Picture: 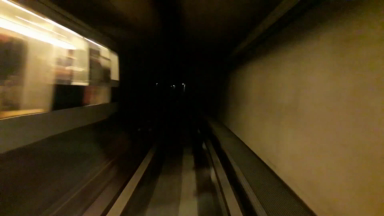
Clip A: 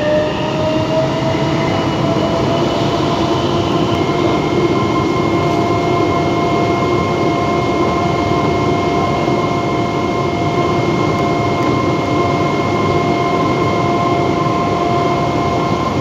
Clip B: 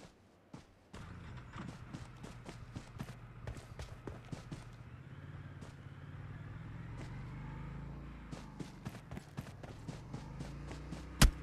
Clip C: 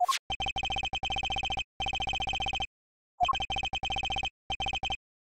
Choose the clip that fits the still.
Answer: A